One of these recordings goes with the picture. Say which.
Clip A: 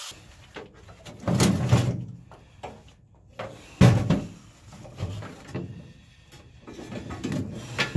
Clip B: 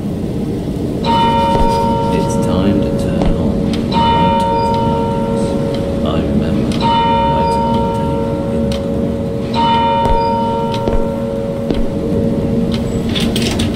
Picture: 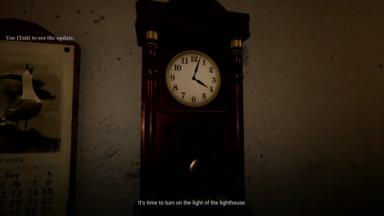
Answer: B